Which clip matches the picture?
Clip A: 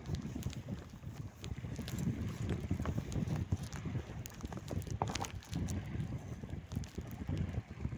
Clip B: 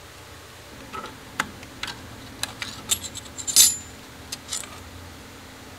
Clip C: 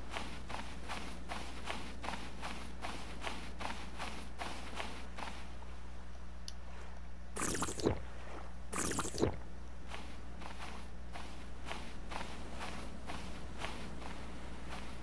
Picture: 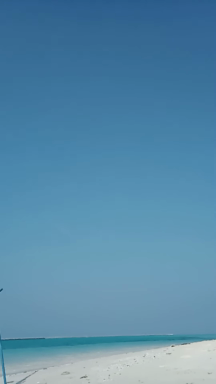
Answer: A